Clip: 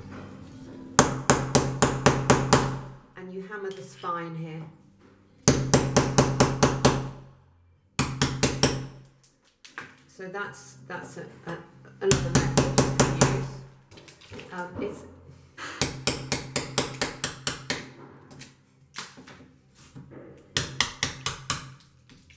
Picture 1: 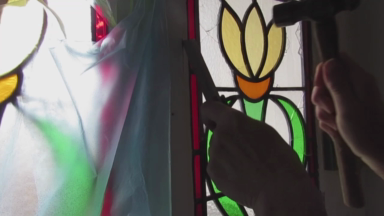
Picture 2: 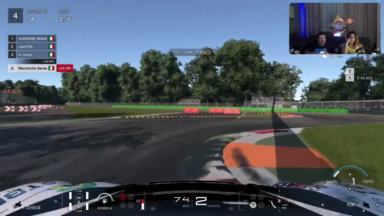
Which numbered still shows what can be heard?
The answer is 1